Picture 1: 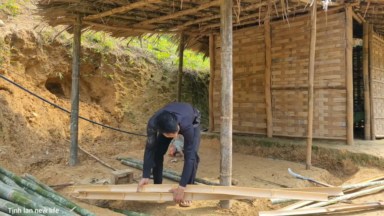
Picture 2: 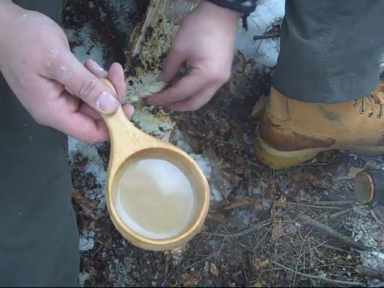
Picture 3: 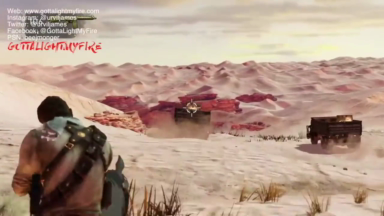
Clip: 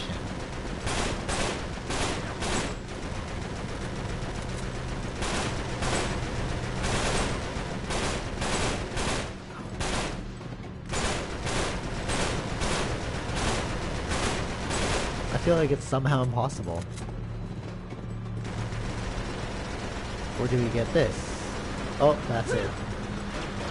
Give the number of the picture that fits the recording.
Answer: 3